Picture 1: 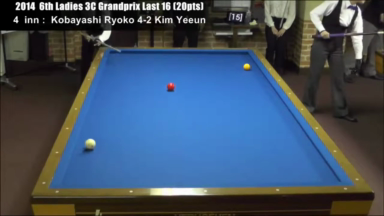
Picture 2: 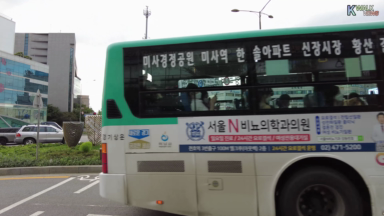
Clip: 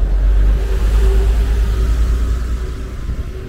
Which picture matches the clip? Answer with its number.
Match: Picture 2